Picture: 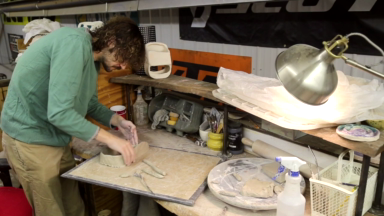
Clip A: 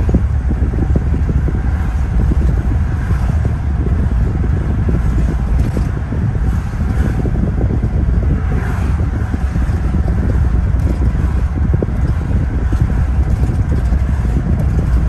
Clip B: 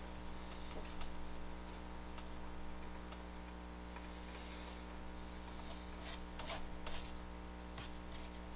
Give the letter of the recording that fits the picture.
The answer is B